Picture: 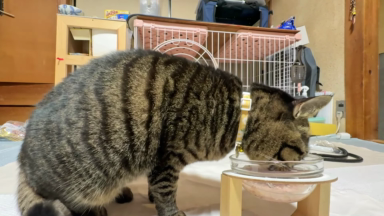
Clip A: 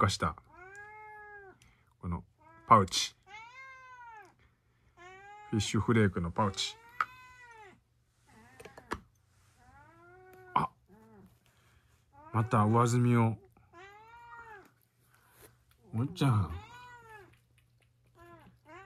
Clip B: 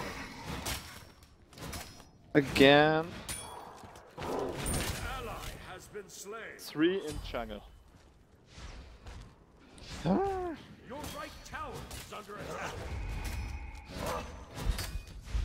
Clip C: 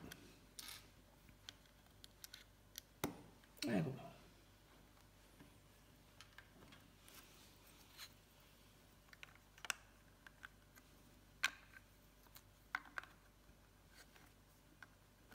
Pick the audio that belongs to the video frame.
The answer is A